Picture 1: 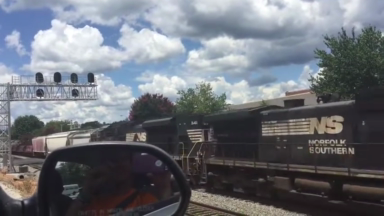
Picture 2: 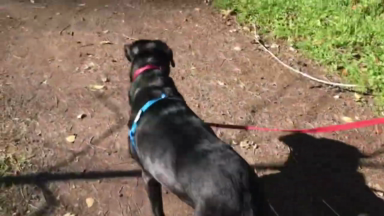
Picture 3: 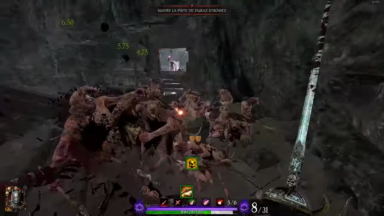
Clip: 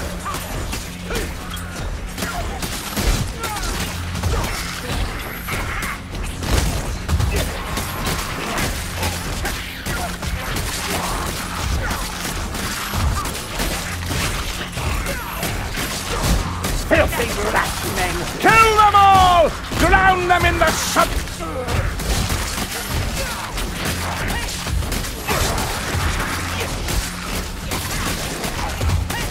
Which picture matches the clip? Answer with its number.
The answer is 3